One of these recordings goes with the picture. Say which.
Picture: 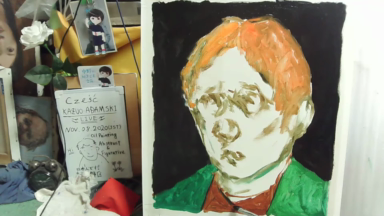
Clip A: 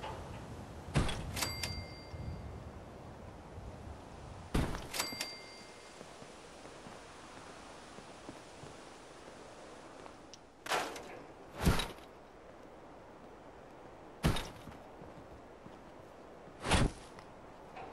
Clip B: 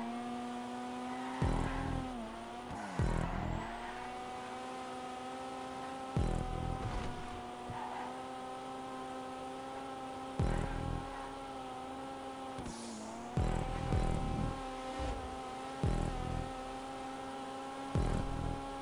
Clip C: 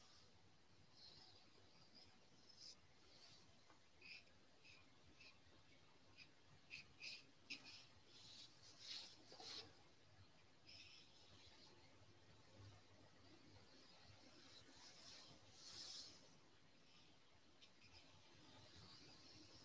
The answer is C